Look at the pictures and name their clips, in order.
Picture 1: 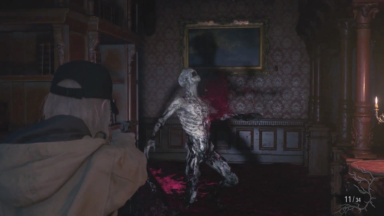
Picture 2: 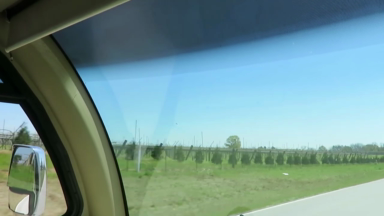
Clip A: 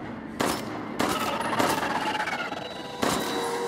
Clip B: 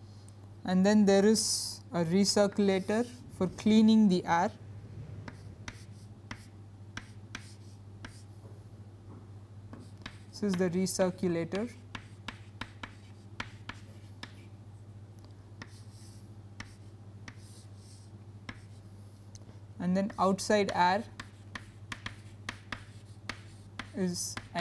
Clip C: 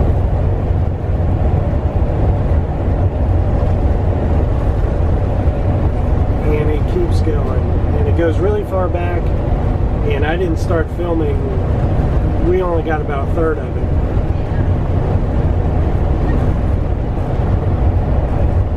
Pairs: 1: A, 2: C